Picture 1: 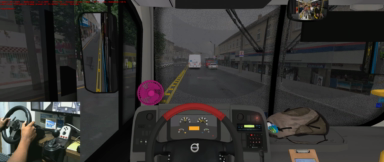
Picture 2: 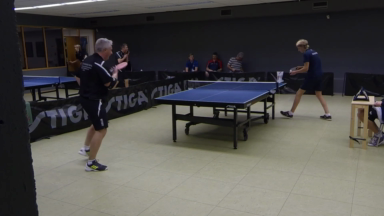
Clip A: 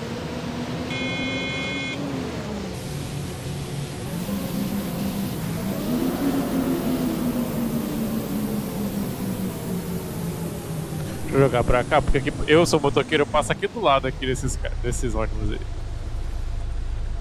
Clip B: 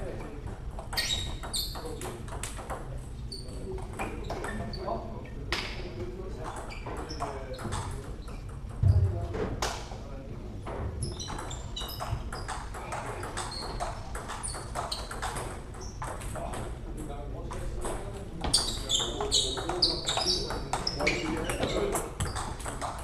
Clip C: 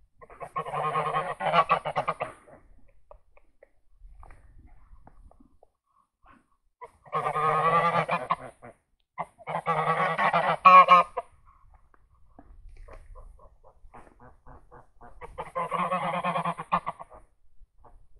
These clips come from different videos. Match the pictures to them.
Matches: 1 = A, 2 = B